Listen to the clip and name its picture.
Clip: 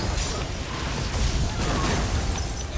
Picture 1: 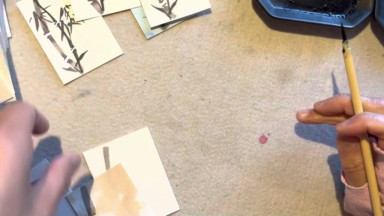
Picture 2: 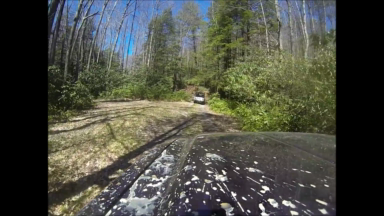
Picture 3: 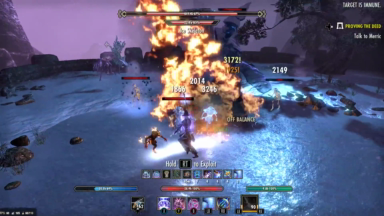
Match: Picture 3